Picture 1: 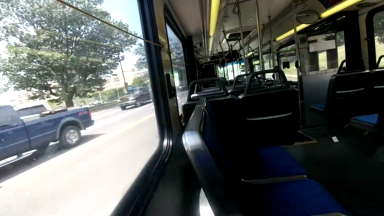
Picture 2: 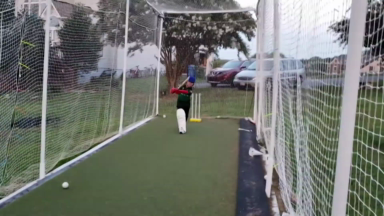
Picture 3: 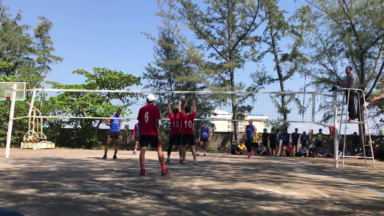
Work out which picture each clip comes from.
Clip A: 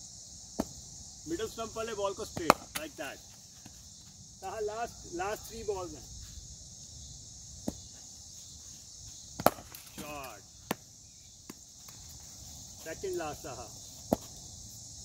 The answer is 2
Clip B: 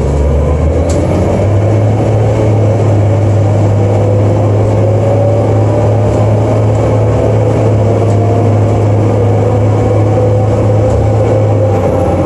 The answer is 1